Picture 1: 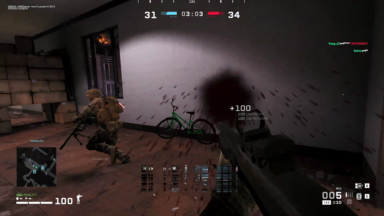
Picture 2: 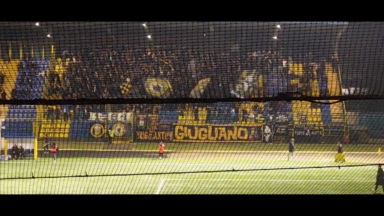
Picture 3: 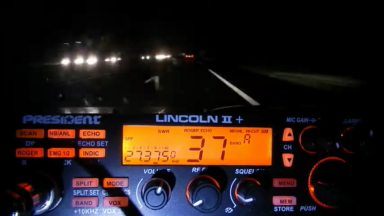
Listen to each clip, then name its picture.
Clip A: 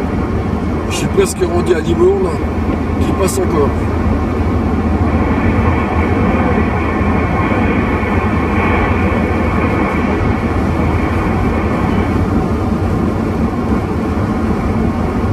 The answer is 3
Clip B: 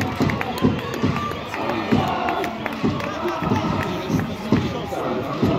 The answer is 2